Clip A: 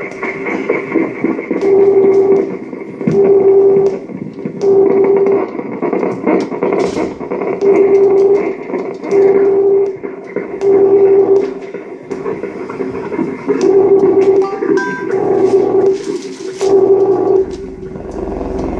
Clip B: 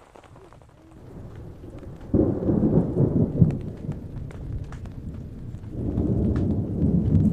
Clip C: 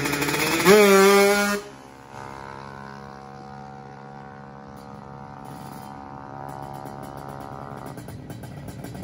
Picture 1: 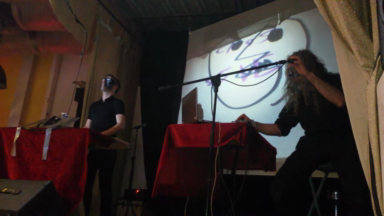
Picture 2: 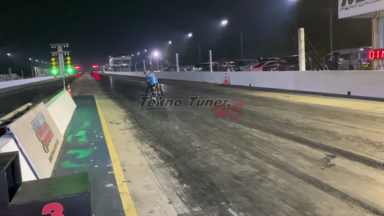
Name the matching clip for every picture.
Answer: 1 A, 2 C